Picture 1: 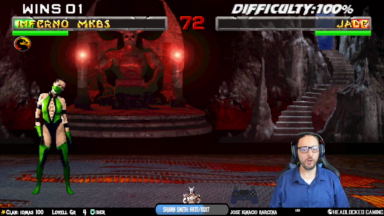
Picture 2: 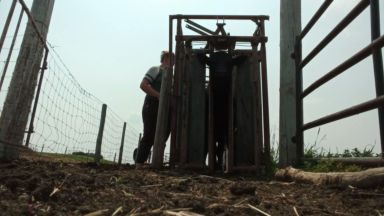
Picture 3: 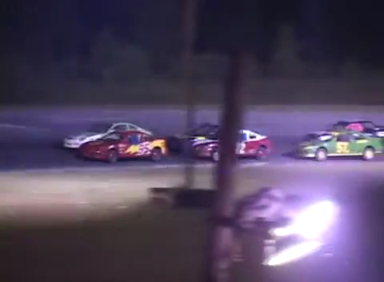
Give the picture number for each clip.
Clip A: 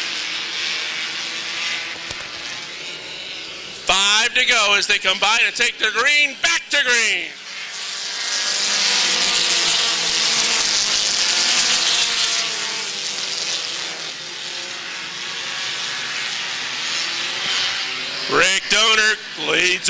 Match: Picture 3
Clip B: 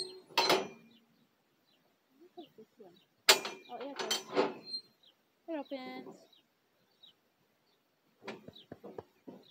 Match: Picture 2